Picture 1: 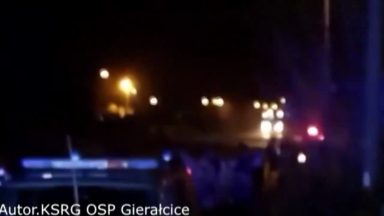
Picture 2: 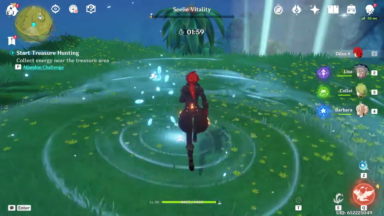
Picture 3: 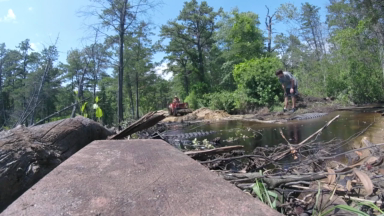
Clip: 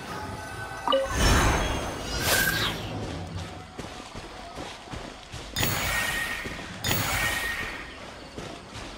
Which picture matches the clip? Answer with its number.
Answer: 2